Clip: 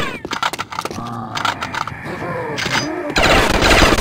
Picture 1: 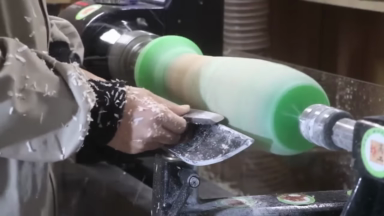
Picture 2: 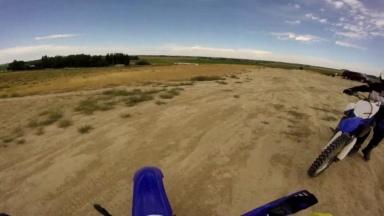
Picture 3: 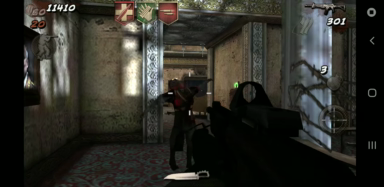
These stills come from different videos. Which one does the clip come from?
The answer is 3